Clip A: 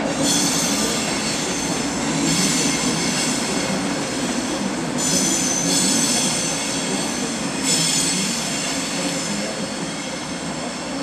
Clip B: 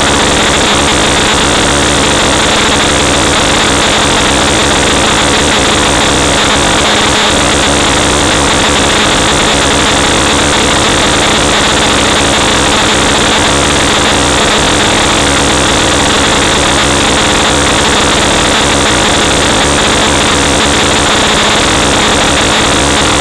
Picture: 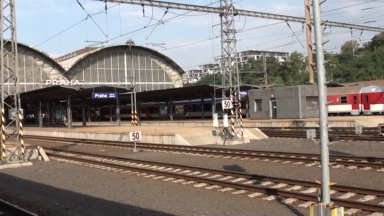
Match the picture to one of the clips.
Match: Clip A